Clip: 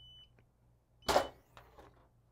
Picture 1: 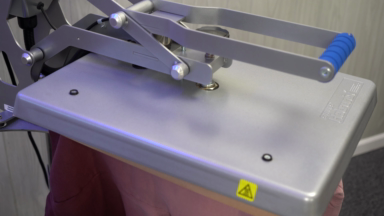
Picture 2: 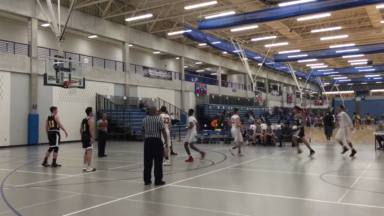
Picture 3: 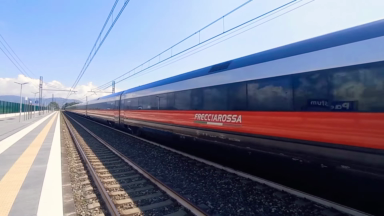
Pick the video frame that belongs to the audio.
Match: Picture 1